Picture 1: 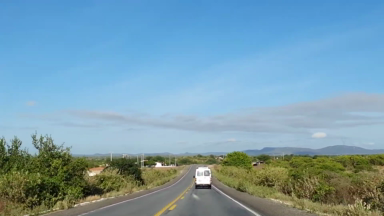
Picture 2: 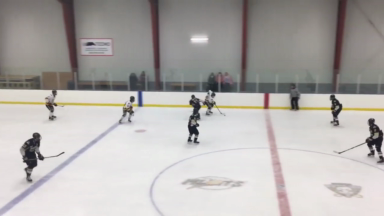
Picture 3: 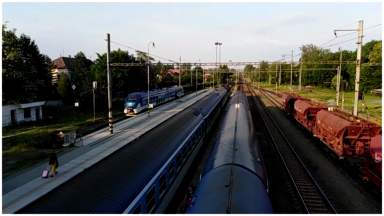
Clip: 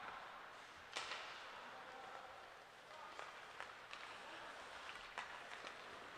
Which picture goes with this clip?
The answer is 2